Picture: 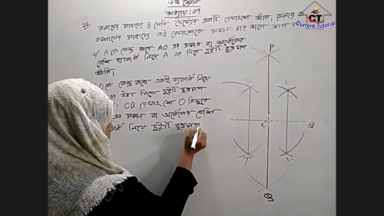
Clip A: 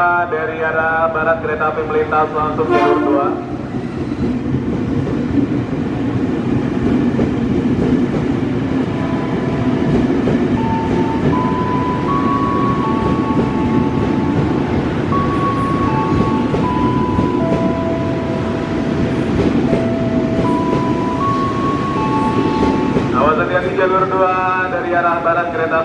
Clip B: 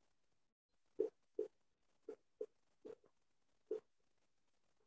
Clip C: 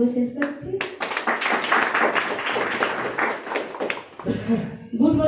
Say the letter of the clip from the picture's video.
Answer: B